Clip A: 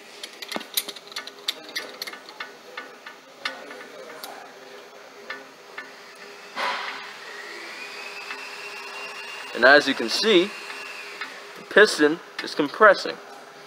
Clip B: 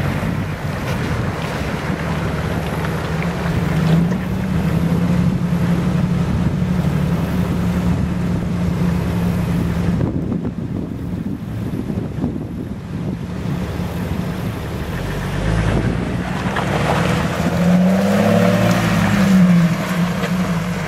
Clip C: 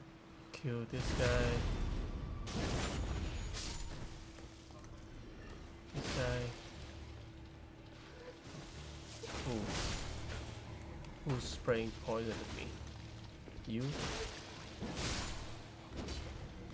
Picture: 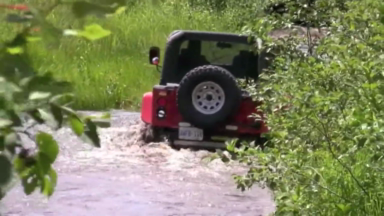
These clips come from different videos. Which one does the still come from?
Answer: B